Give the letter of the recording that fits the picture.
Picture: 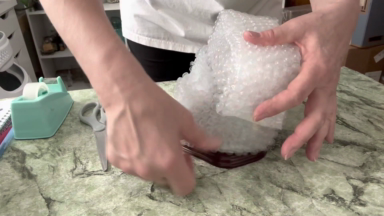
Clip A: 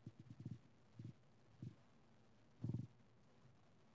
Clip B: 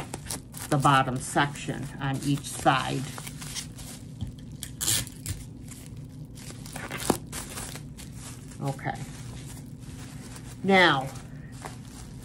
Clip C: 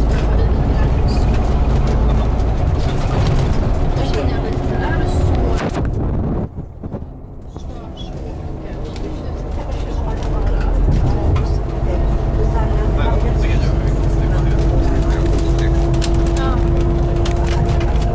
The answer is B